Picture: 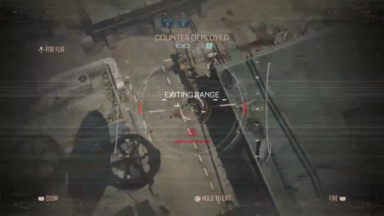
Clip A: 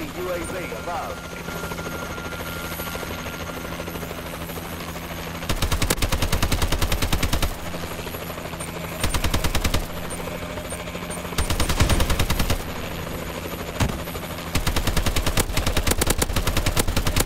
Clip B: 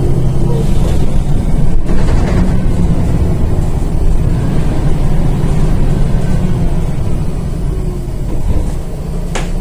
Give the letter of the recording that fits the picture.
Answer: A